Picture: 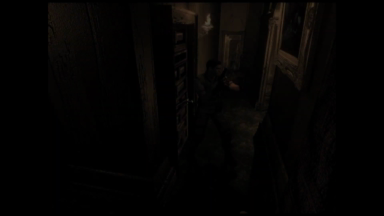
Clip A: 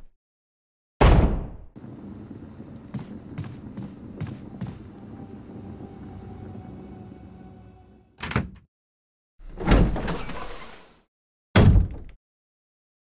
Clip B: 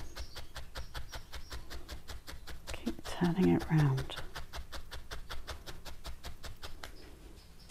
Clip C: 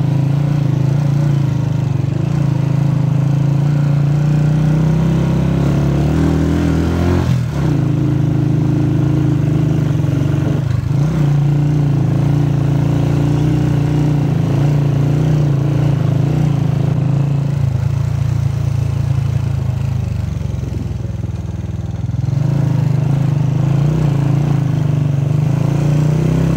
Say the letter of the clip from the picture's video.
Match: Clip A